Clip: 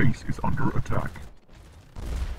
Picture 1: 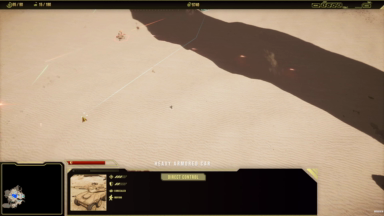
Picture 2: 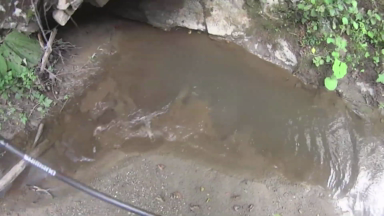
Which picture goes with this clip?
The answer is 1